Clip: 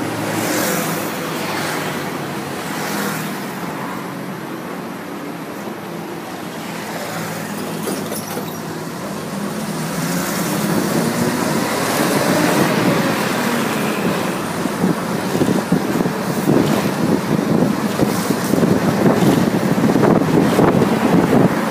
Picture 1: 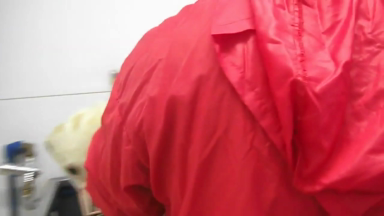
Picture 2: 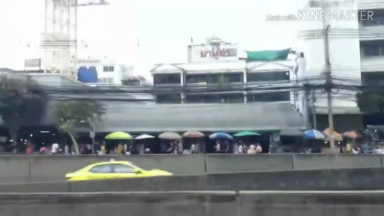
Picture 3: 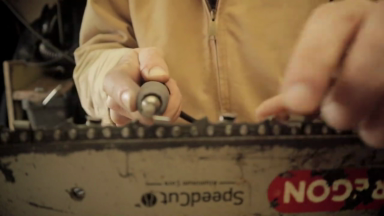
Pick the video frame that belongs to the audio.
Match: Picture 2